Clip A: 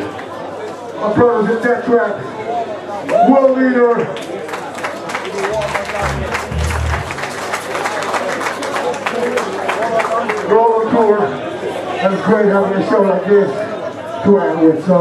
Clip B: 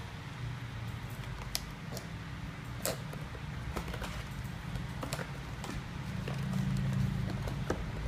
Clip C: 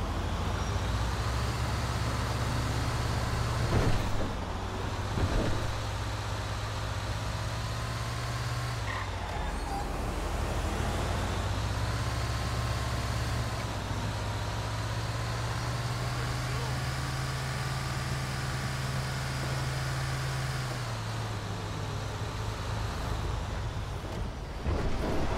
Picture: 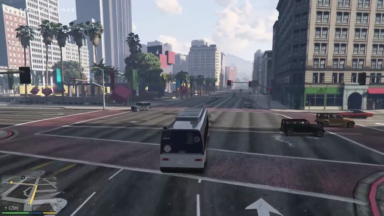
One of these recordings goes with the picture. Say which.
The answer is C